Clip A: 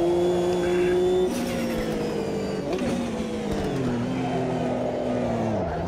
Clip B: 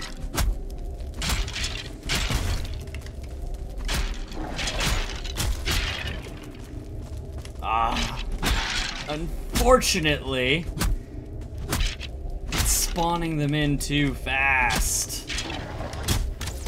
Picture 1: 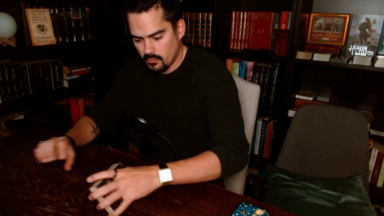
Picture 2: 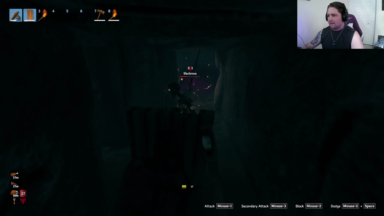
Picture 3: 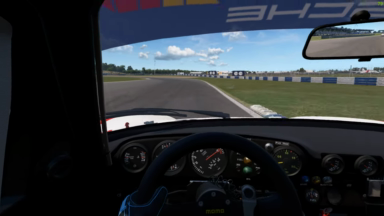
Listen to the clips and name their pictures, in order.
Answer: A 3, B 2